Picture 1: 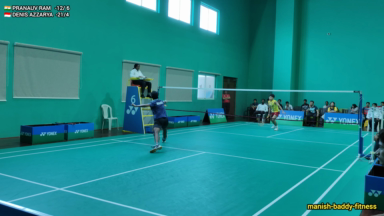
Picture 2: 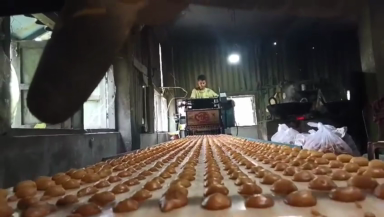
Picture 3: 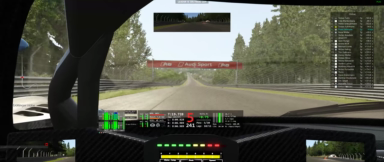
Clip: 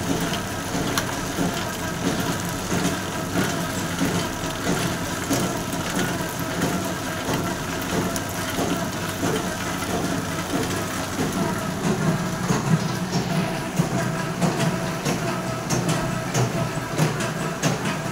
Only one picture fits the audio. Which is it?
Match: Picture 2